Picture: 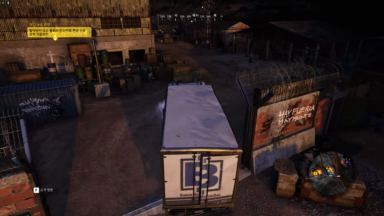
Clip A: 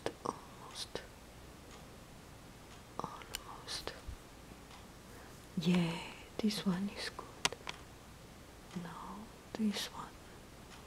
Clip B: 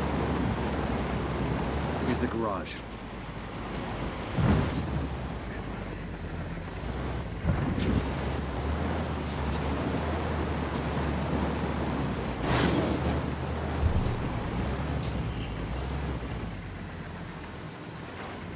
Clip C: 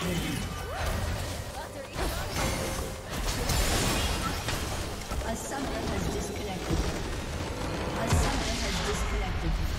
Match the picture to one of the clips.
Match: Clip B